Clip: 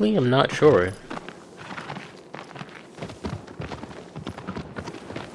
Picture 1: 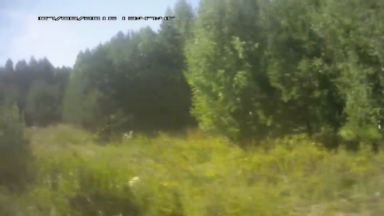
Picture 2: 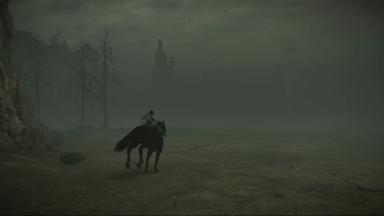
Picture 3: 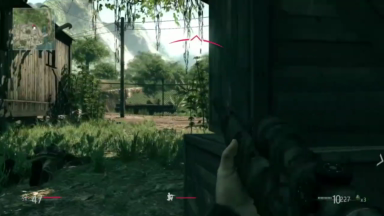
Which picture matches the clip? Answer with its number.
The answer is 2